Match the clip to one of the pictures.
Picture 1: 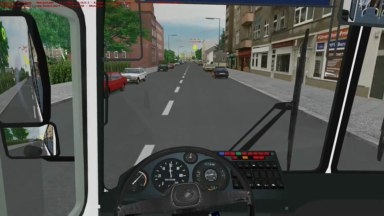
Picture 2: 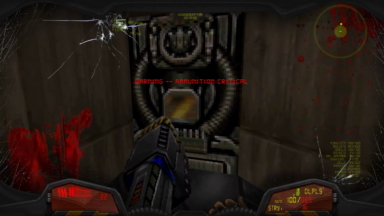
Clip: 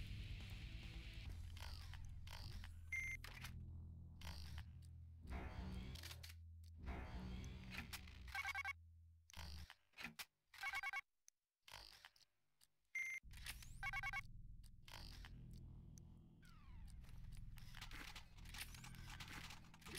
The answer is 2